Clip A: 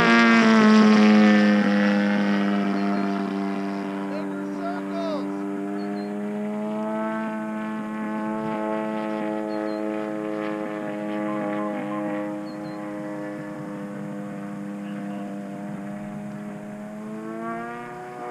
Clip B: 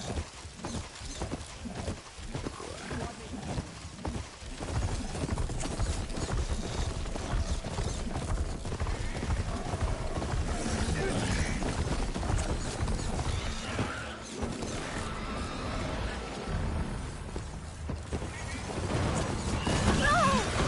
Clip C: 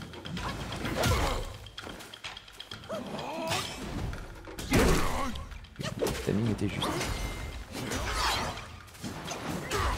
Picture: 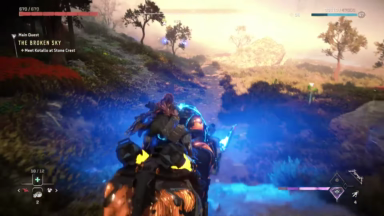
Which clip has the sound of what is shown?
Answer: B